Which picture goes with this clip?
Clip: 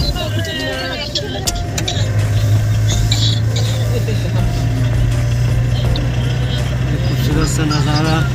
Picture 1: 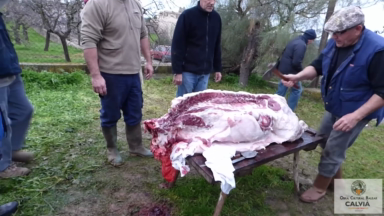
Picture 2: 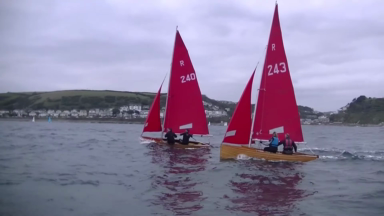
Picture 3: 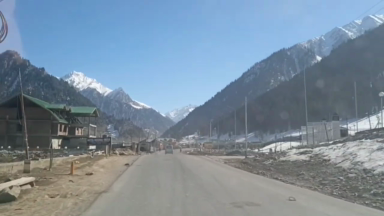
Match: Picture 3